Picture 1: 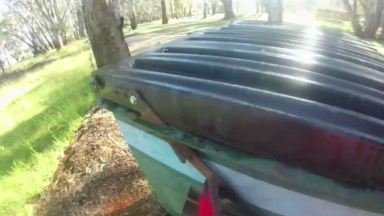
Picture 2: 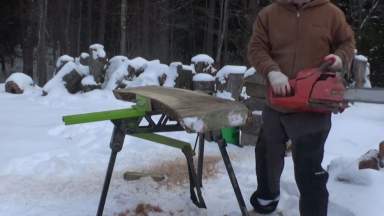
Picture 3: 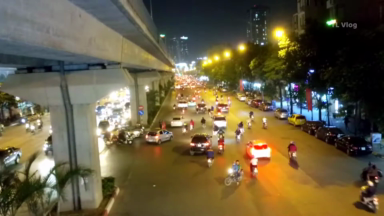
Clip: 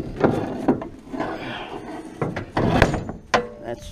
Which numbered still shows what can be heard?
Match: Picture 1